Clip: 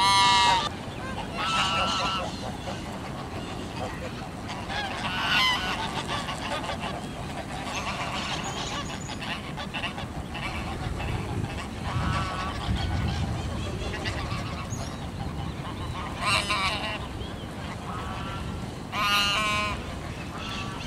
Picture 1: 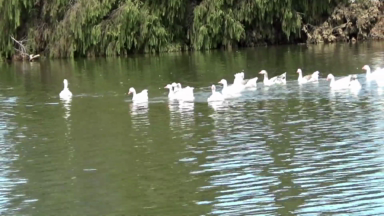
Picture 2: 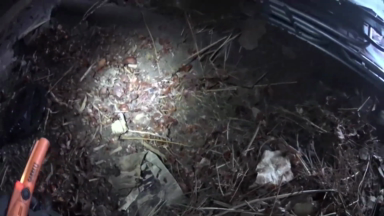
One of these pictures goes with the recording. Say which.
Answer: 1